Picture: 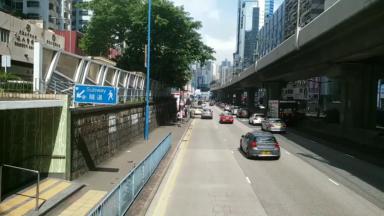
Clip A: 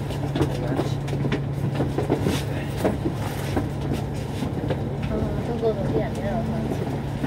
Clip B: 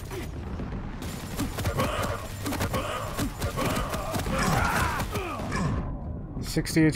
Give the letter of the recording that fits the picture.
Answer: A